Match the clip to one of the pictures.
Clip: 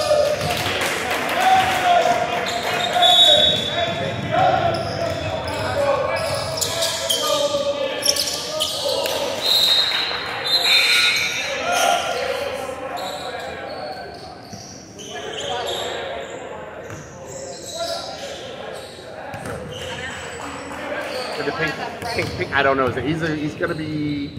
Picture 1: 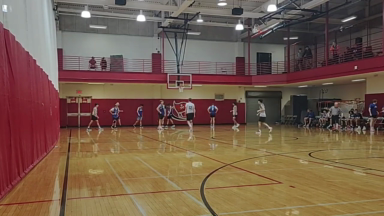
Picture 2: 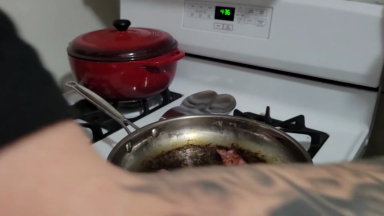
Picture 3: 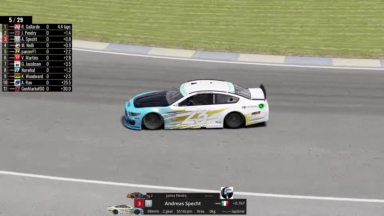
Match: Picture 1